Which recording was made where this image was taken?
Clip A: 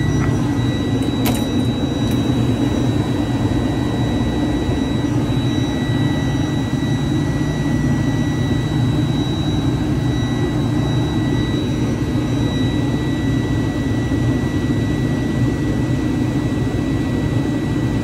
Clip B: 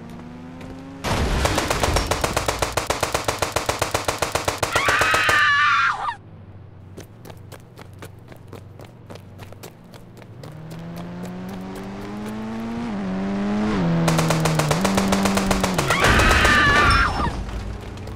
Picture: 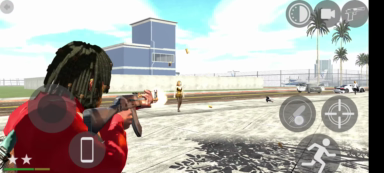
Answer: B